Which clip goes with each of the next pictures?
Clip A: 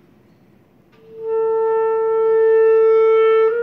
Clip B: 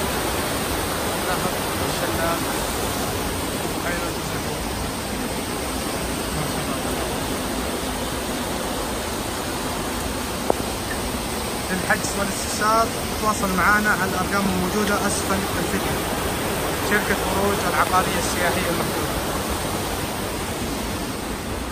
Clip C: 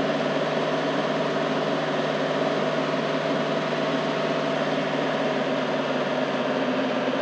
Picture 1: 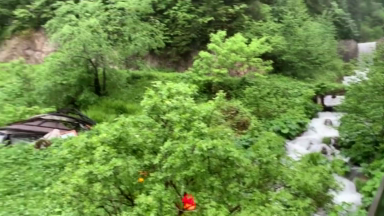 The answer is B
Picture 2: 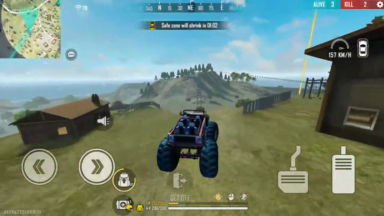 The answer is C